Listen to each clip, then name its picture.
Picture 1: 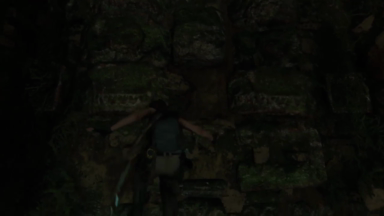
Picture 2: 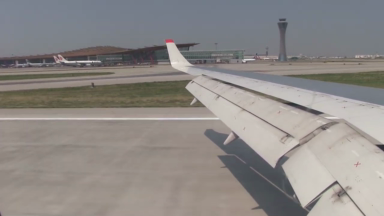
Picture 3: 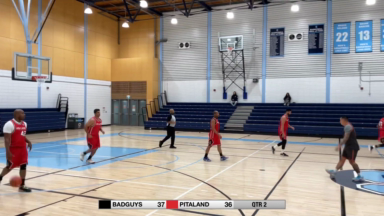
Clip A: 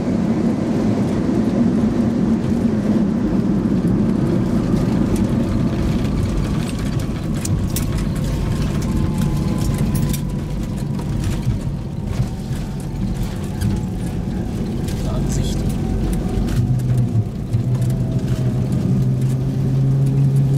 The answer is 2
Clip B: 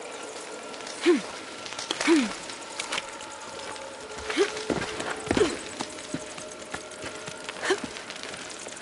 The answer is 1